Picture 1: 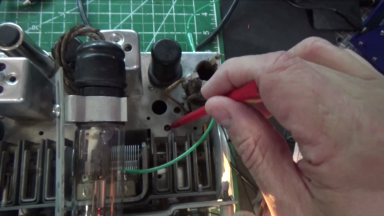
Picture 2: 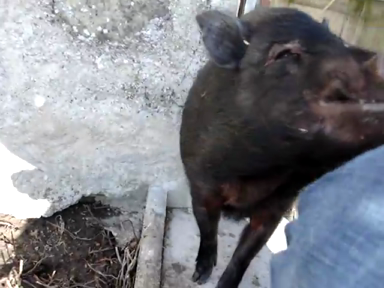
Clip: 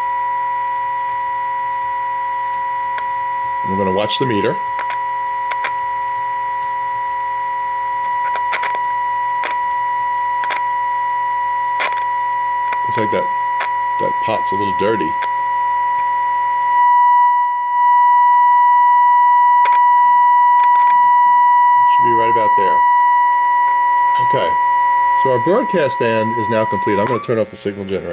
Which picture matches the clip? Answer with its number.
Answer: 1